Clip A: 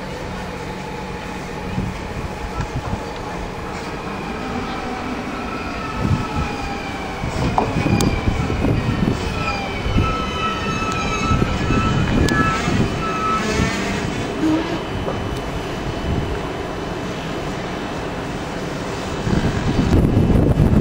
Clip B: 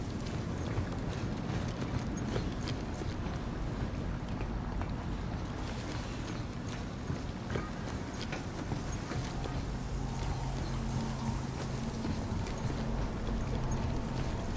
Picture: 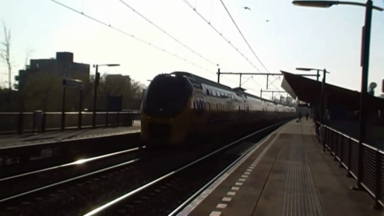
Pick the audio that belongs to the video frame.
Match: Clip A